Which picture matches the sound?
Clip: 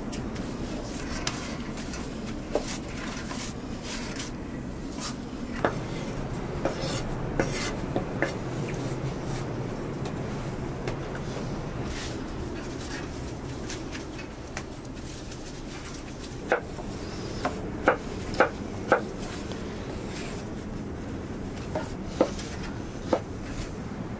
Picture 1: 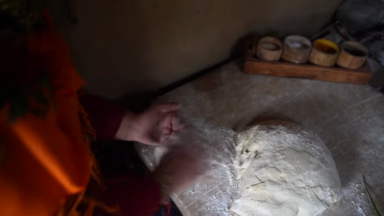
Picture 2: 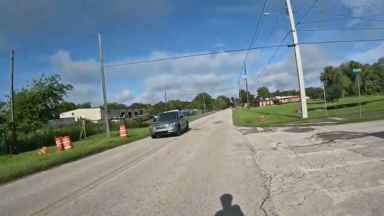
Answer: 1